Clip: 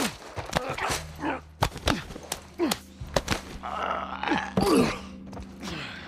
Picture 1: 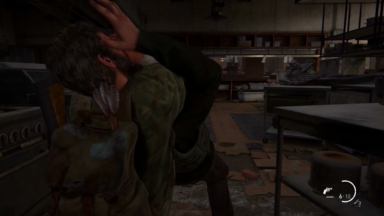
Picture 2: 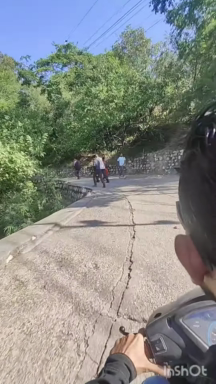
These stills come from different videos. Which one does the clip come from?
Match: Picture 1